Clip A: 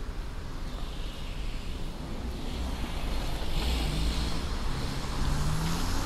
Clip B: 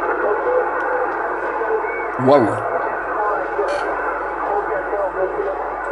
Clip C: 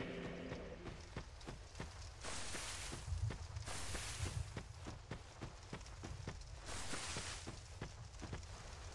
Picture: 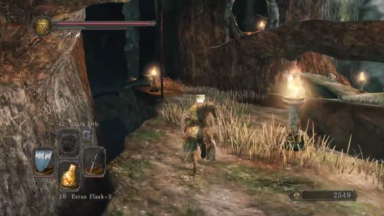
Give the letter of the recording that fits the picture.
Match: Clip C